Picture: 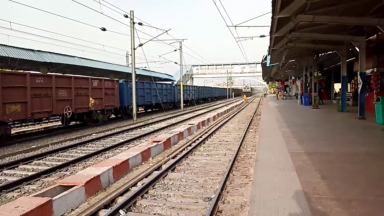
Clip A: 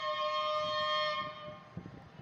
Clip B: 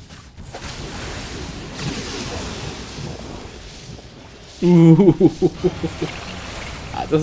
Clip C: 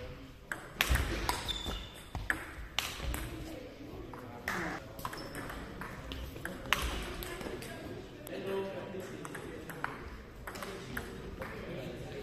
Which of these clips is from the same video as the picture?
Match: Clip A